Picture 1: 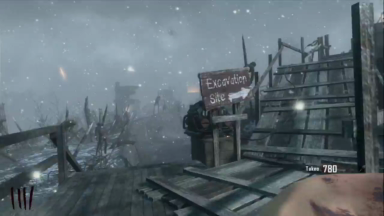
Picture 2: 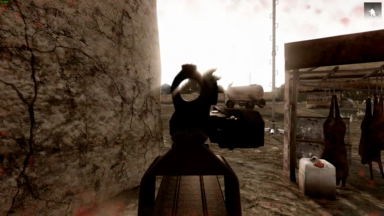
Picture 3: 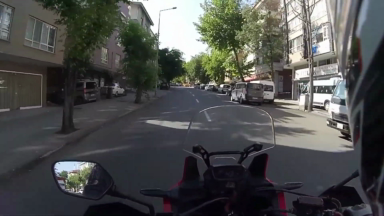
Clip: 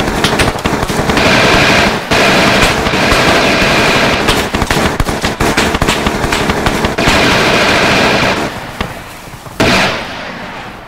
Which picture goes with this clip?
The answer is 2